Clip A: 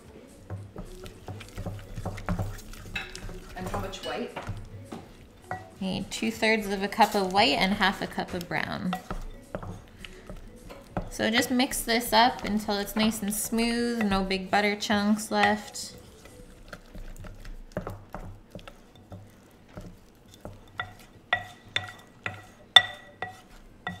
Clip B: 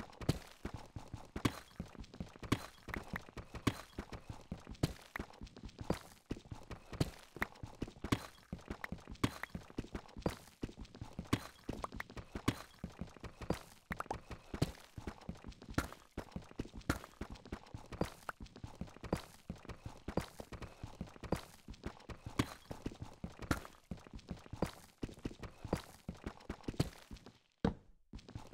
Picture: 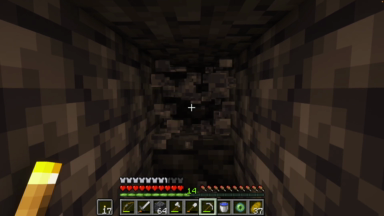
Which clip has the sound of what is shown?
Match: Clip B